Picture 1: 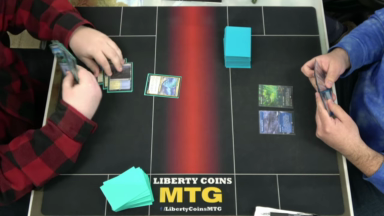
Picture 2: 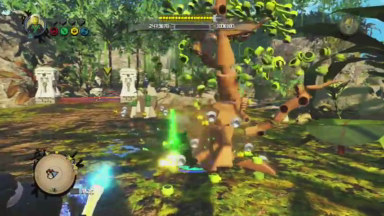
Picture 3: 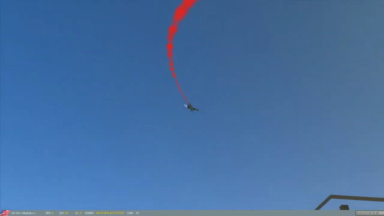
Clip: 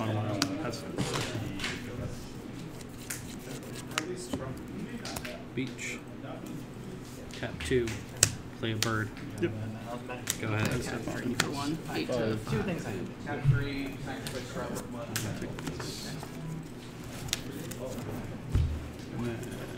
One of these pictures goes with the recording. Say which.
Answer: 1